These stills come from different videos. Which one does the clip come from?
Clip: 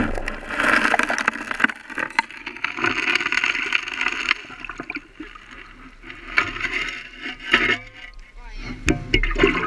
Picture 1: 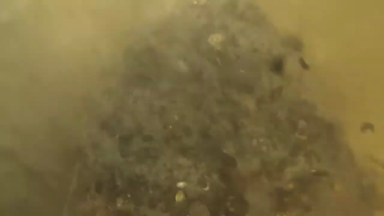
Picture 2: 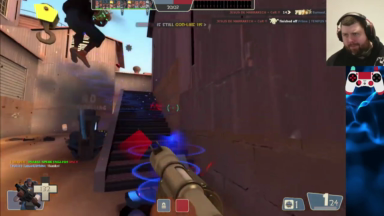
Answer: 1